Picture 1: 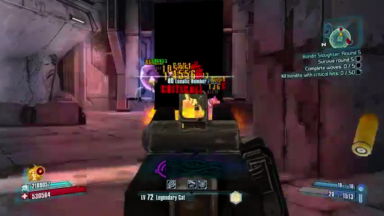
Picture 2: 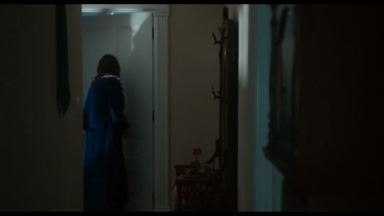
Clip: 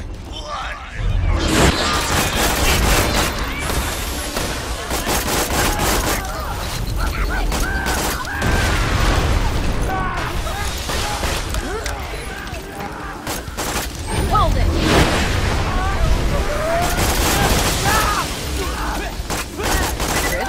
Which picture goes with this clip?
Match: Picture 1